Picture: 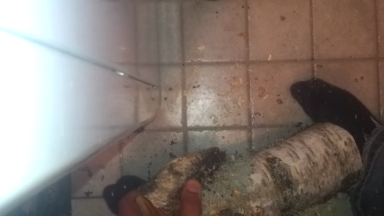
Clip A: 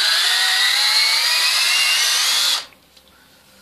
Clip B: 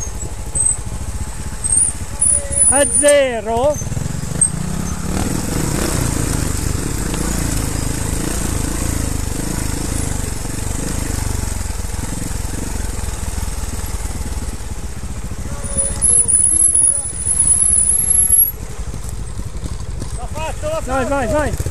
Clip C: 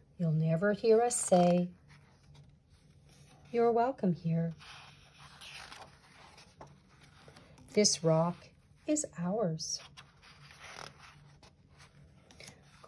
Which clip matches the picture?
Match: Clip A